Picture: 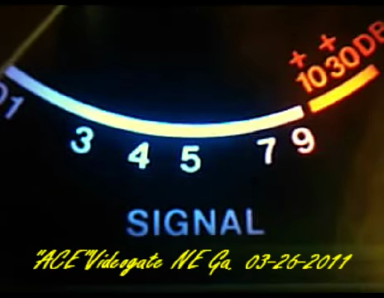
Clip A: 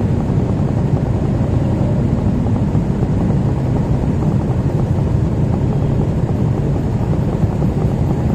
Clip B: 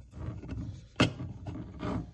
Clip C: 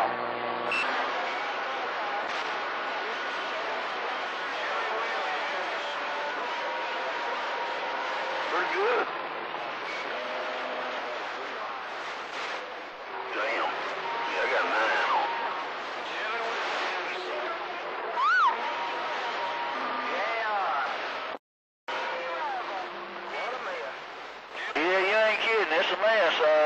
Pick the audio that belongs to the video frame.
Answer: C